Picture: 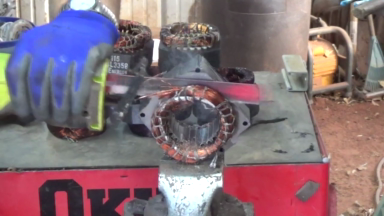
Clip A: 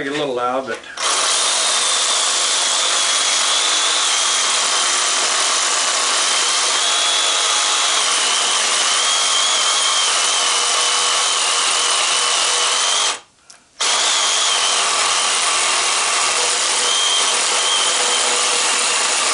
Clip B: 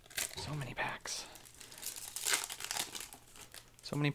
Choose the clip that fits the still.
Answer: A